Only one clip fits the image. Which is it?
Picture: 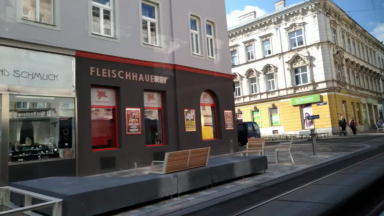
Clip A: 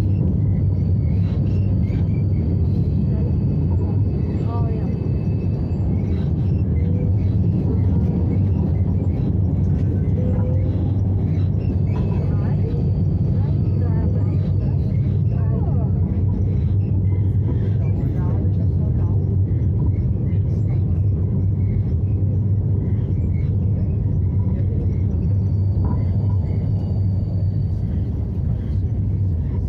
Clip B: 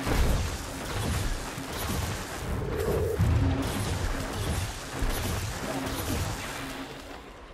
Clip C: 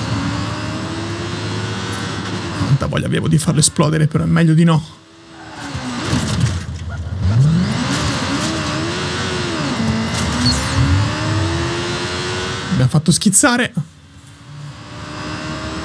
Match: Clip A